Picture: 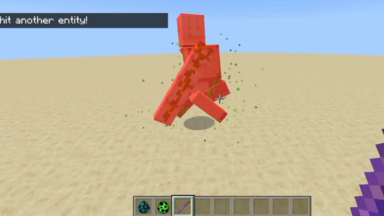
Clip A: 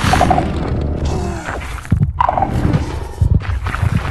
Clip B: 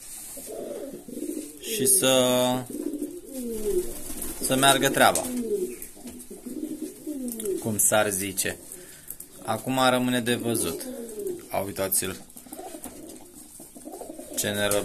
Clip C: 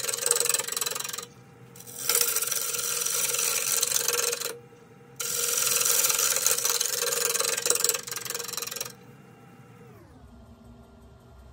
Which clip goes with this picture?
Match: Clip A